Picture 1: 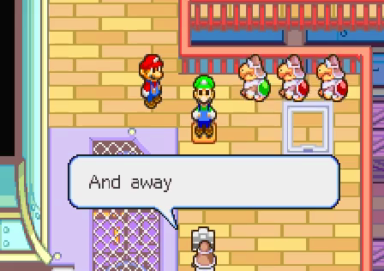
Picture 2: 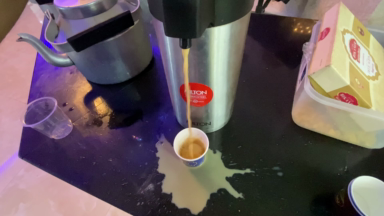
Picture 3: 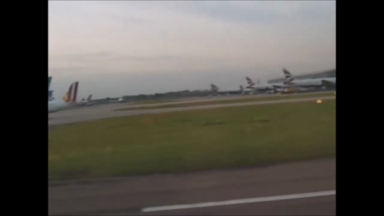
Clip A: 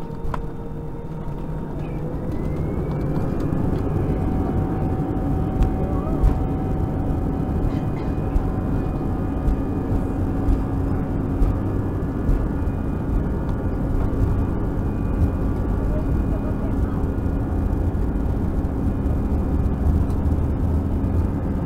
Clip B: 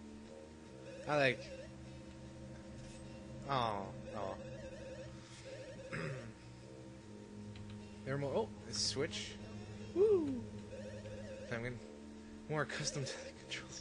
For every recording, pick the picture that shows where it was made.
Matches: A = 3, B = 1